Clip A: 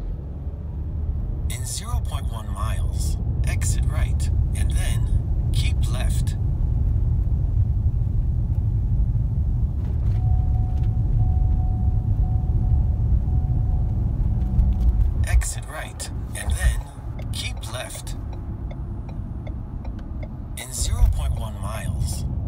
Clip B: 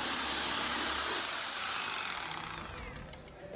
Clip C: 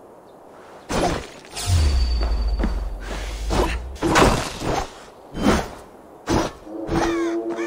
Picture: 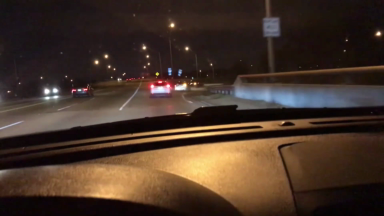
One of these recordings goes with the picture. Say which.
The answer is A